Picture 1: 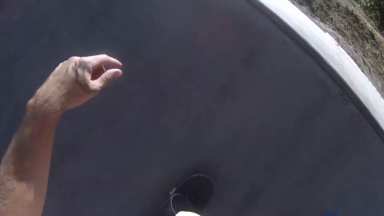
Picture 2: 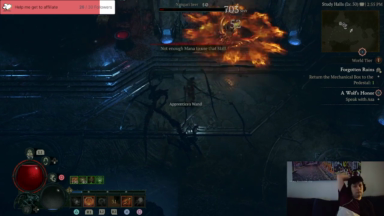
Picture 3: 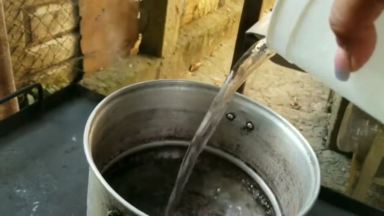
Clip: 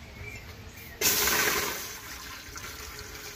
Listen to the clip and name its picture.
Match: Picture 3